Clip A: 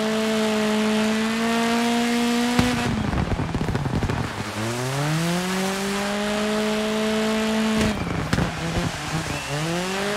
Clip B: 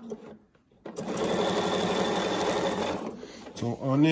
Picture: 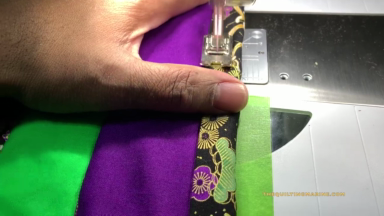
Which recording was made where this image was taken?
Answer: B